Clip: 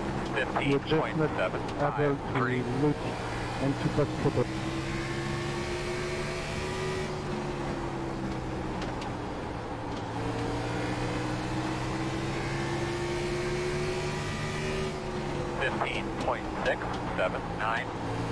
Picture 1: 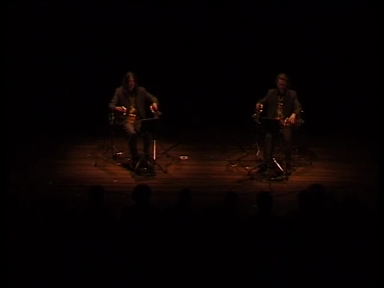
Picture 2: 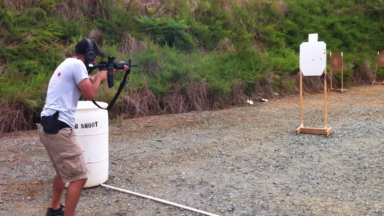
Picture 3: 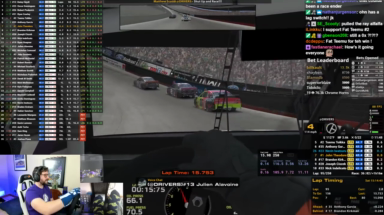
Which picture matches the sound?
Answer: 3